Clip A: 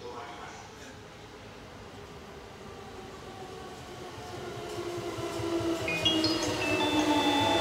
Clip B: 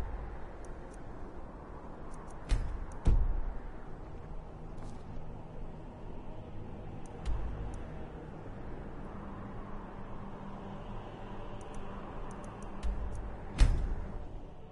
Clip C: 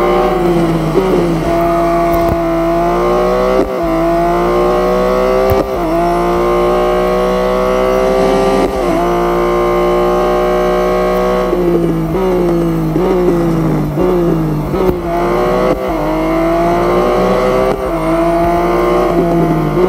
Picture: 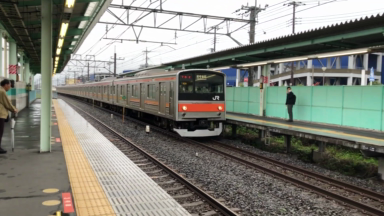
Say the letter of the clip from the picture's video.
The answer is A